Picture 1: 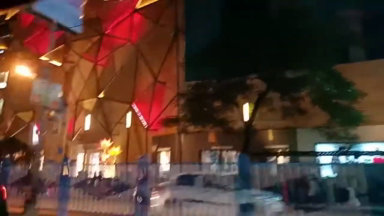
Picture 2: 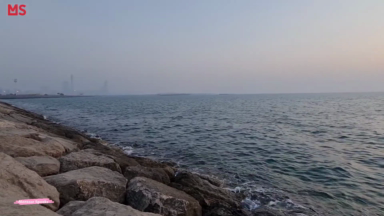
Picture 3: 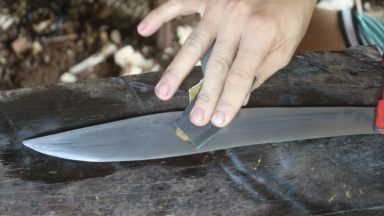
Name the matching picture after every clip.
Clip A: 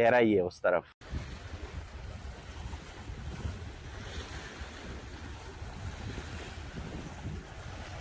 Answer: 2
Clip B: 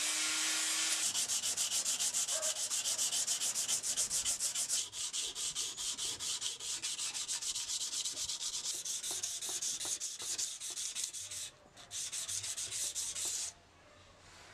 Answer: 3